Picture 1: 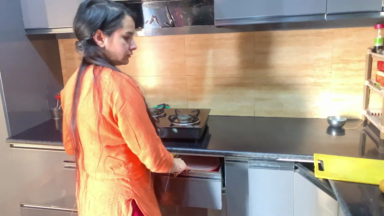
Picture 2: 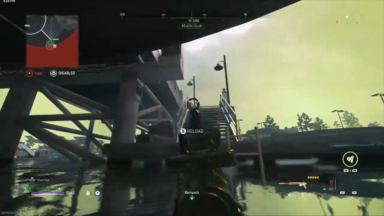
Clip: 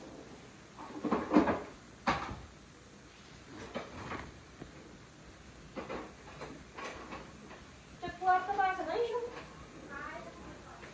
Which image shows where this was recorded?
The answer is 1